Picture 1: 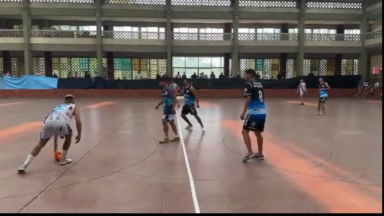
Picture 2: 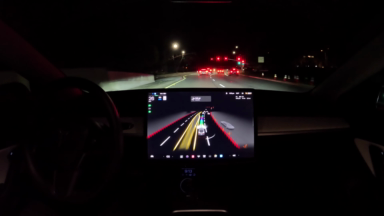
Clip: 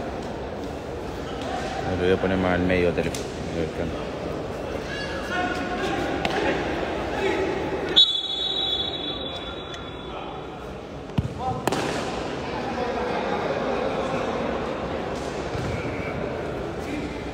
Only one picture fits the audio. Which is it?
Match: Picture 1